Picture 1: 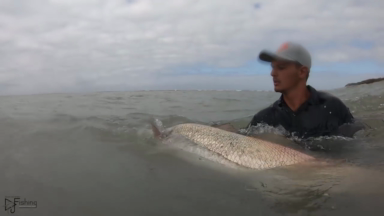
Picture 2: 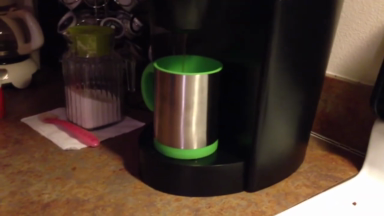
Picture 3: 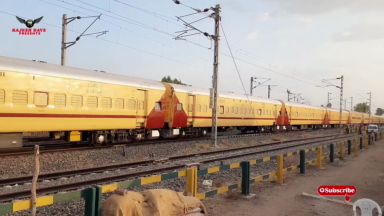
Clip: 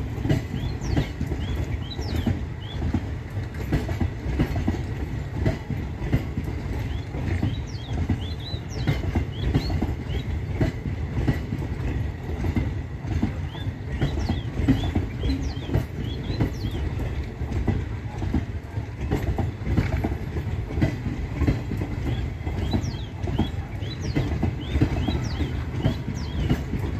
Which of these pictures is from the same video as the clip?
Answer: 3